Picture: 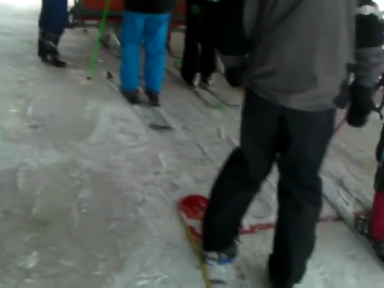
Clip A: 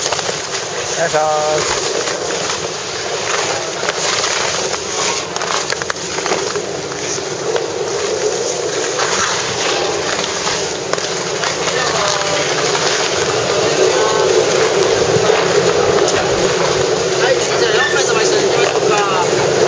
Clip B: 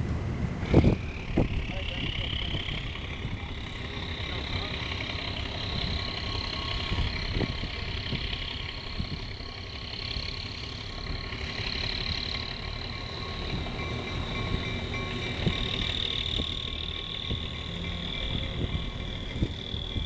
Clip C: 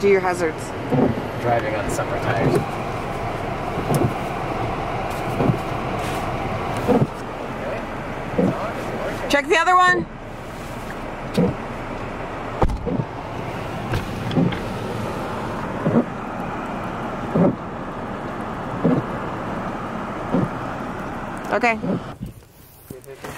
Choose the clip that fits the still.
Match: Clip A